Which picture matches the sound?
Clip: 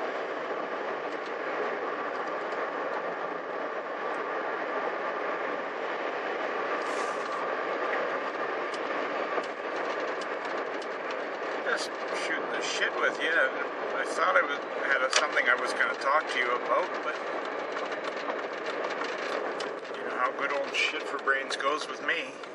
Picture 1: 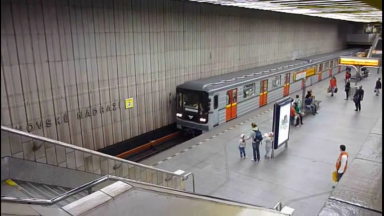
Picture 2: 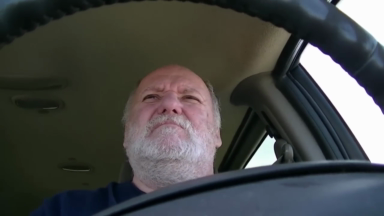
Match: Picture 2